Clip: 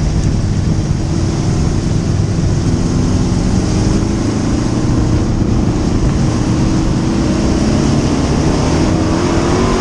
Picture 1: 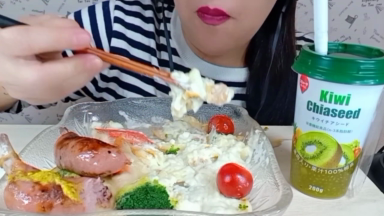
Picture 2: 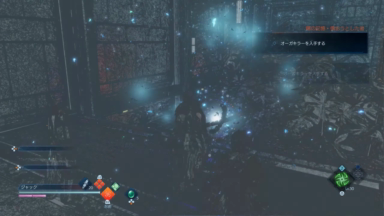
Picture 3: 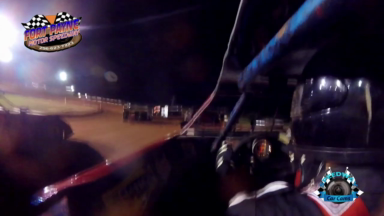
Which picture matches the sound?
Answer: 3